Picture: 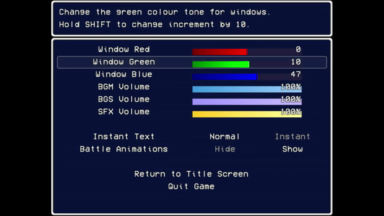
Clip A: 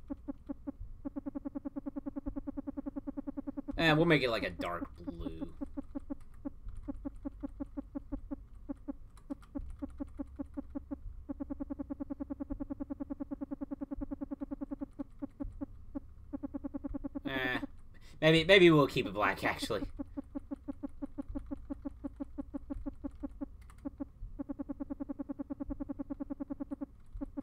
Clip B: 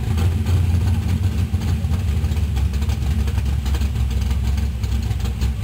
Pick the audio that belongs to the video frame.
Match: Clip A